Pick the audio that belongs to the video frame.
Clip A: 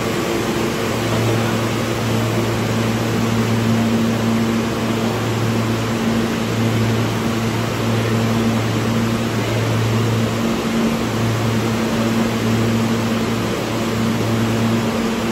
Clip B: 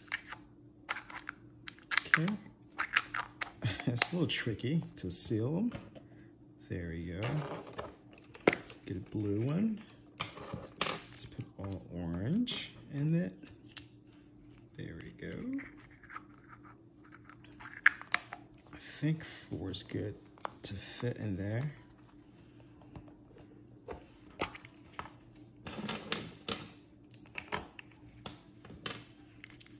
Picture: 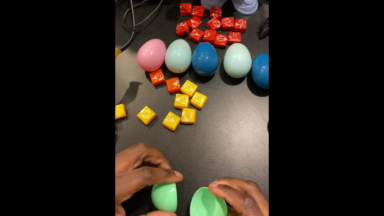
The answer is B